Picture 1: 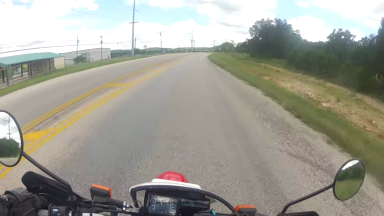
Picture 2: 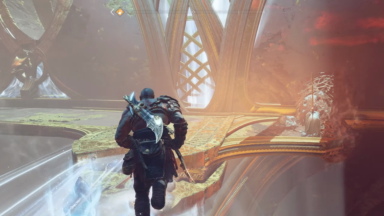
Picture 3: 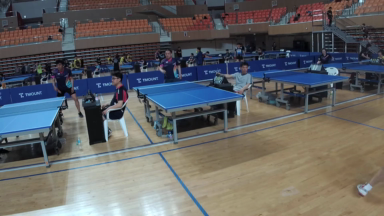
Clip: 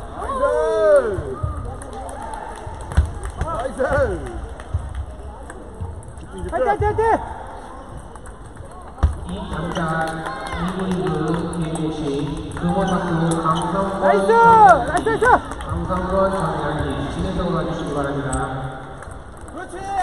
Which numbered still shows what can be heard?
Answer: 3